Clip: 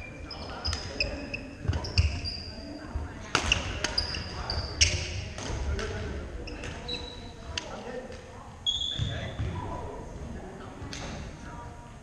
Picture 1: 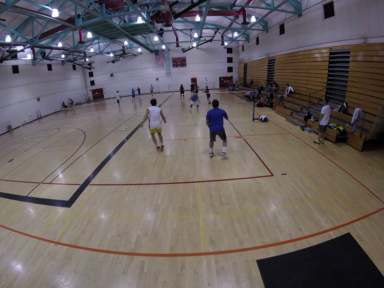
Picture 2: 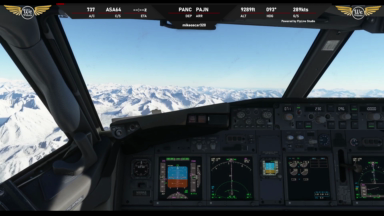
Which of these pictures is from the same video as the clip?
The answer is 1